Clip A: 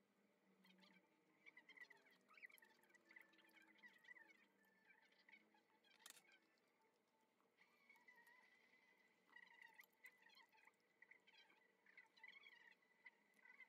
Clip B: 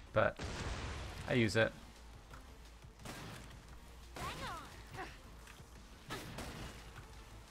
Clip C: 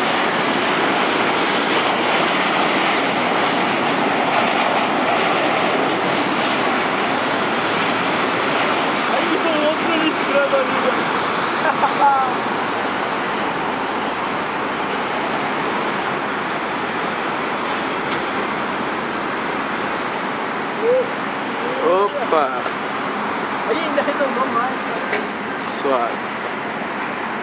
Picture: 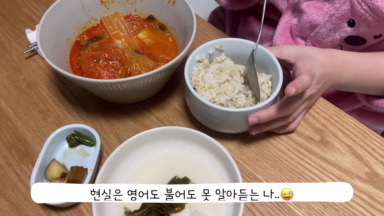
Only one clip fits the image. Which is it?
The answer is A